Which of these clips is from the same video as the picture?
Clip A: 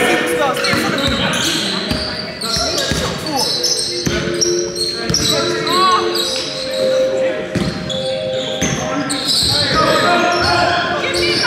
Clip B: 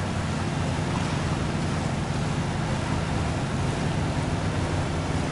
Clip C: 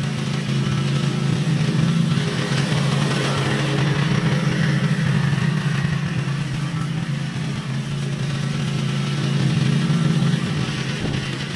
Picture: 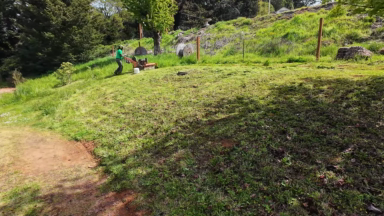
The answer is C